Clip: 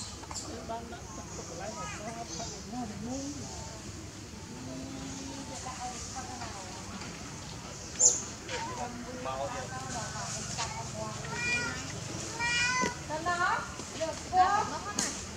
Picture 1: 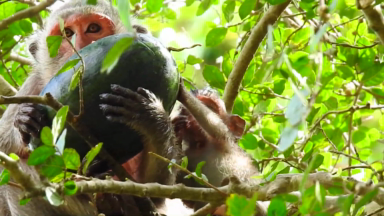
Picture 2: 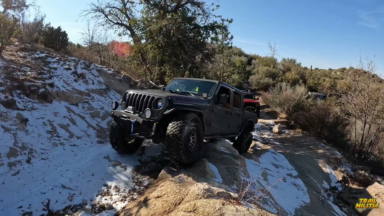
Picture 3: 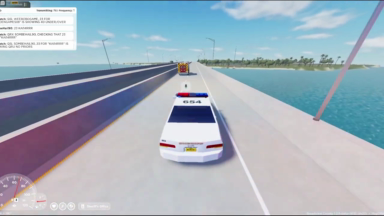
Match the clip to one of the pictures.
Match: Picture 1